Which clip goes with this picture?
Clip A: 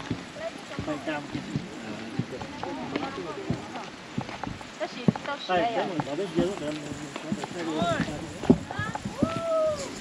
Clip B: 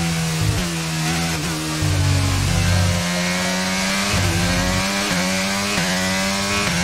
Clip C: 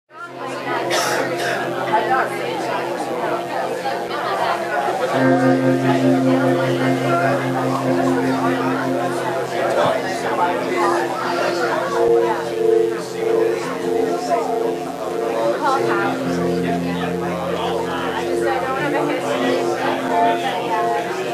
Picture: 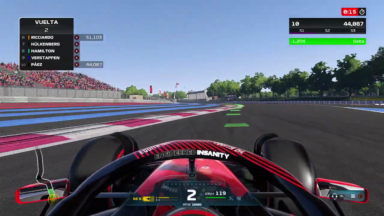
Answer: B